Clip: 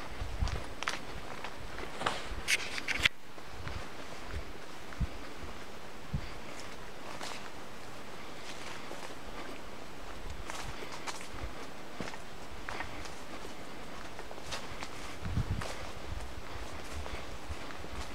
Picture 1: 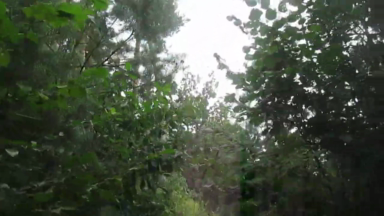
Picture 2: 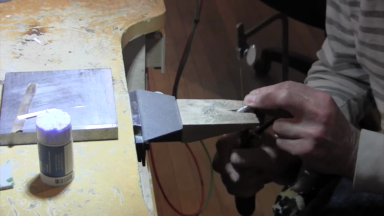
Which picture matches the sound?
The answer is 1